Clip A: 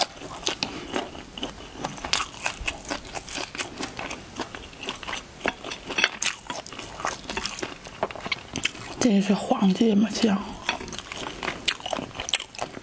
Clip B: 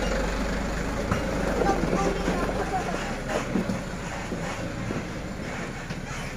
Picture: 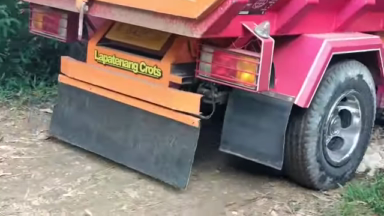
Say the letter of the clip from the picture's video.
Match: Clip B